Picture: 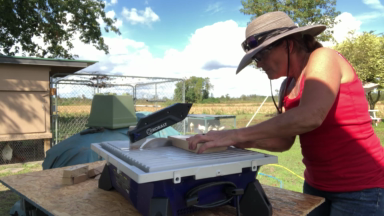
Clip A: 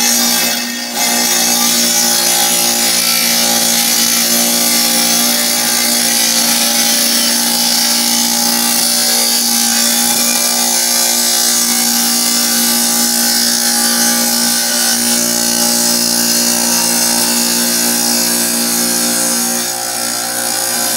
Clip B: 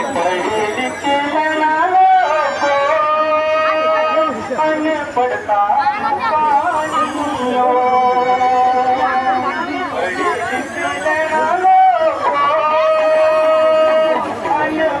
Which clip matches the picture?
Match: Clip A